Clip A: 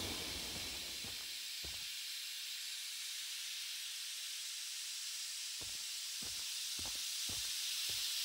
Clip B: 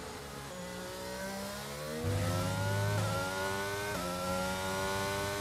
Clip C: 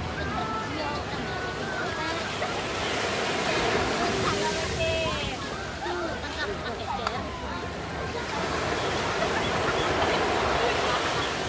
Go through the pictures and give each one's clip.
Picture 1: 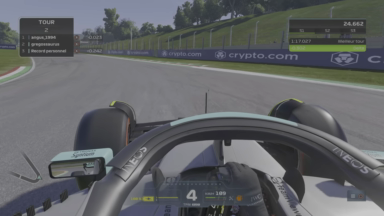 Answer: B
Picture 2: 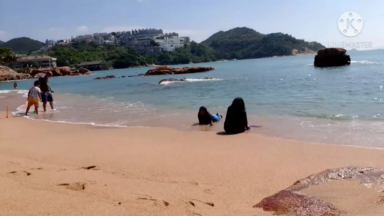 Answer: C